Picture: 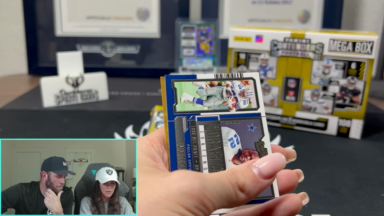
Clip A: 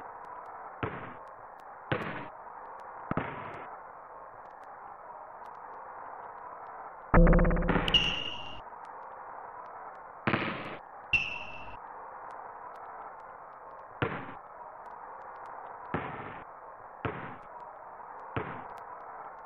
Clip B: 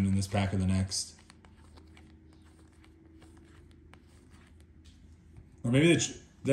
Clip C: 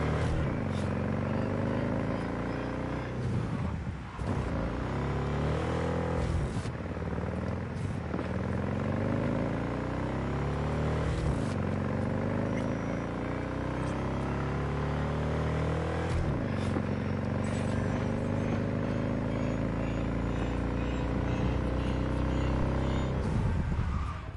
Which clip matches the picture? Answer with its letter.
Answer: B